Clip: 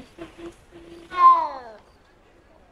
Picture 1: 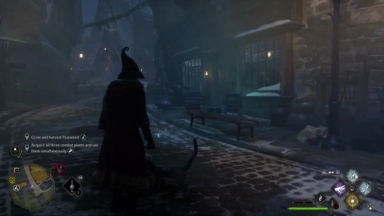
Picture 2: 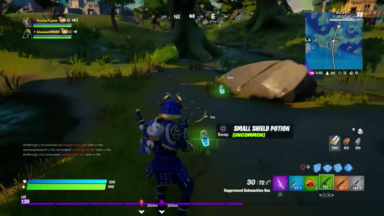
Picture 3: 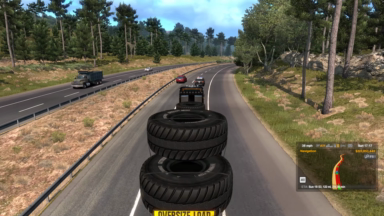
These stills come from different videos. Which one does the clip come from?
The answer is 1